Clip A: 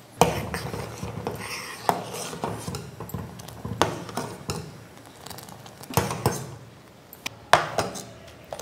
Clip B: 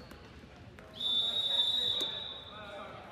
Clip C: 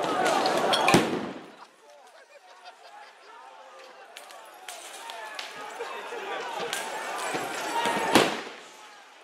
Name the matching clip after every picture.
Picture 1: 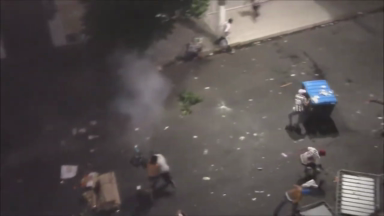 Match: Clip C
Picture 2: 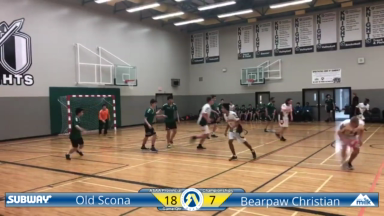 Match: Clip B